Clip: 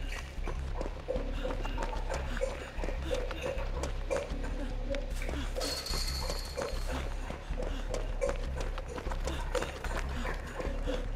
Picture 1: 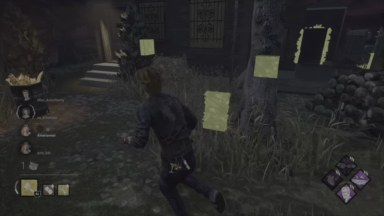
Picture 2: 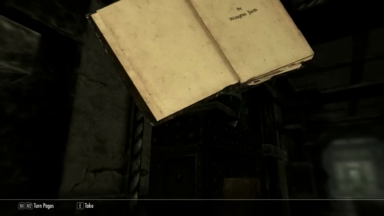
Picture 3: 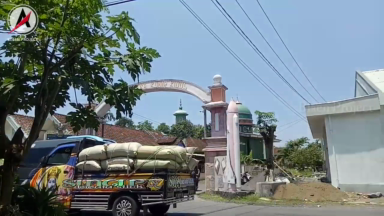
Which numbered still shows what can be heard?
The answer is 1